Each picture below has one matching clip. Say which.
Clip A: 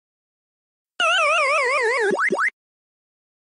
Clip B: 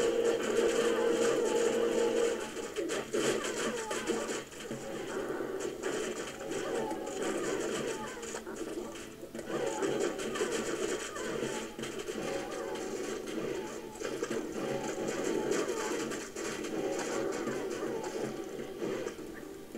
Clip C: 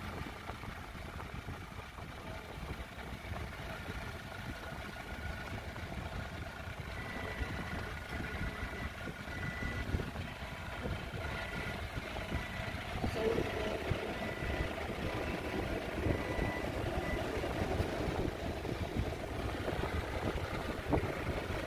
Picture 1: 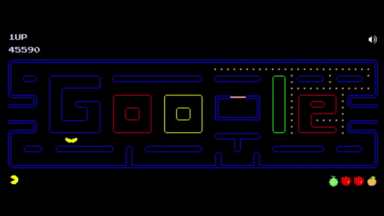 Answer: A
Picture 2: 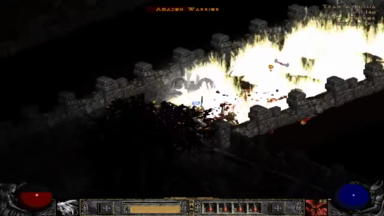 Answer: B